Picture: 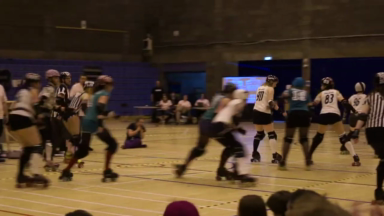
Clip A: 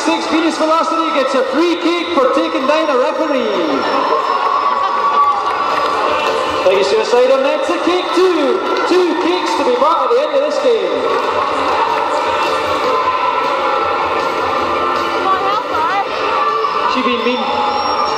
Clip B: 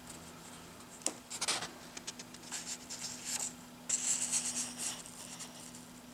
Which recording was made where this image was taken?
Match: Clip A